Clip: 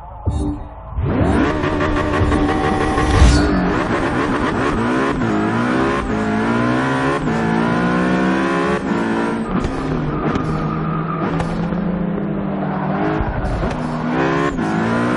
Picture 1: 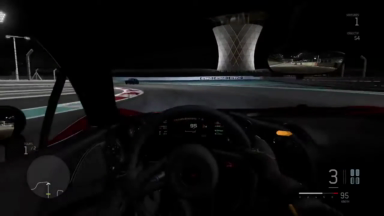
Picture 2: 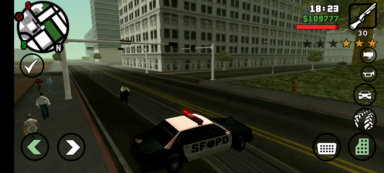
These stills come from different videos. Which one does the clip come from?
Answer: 1